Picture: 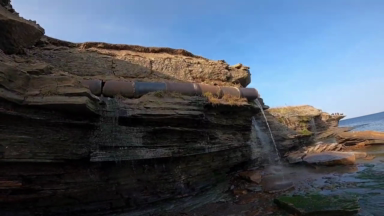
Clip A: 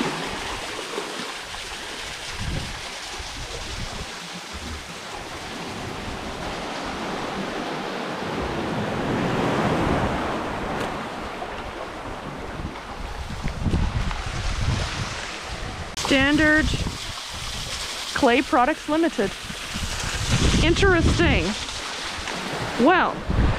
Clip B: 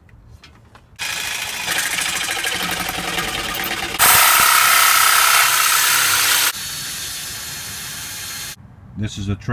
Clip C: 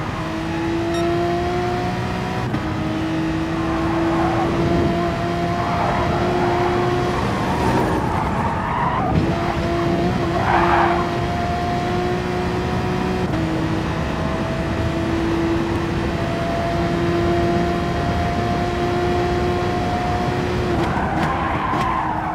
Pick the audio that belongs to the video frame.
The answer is A